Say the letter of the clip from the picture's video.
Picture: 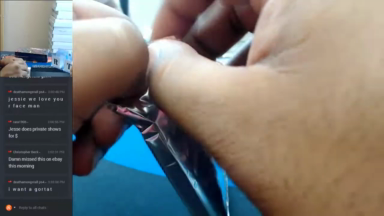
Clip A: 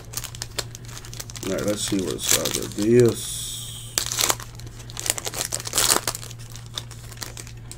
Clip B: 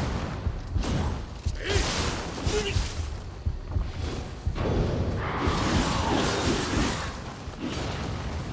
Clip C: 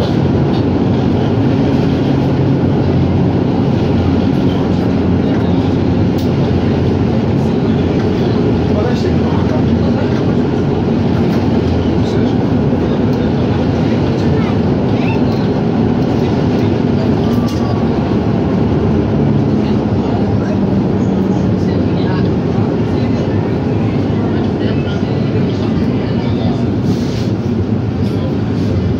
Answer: A